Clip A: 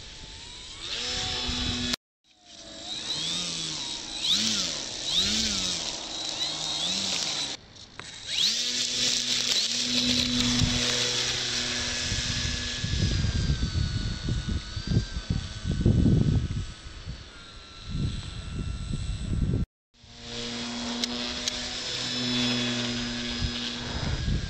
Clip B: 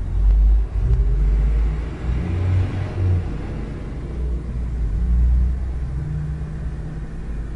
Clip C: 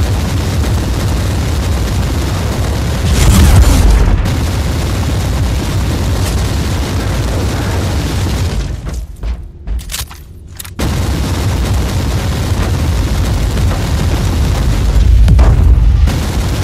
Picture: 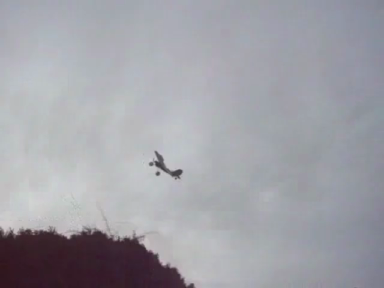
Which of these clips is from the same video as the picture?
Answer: A